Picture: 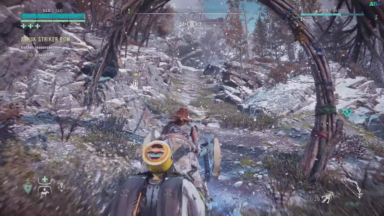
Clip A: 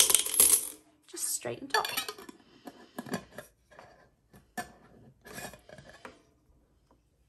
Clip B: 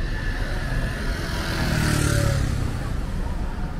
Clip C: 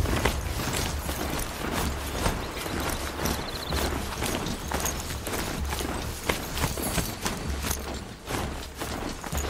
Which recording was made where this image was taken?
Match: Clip C